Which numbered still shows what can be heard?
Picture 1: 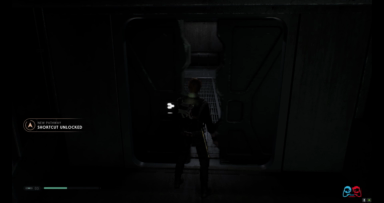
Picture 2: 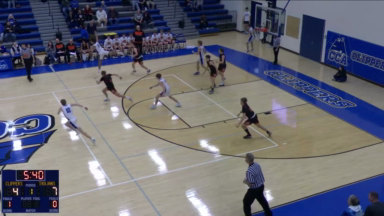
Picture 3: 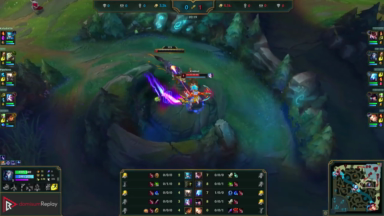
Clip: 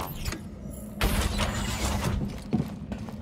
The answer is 1